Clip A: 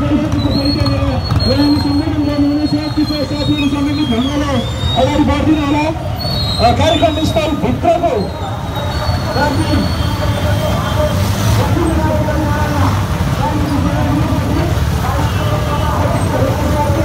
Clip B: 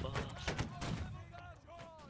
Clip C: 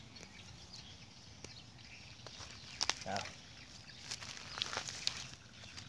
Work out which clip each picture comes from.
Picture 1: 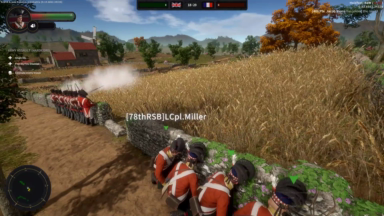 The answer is B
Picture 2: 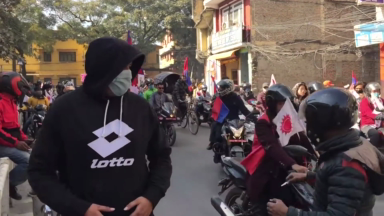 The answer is A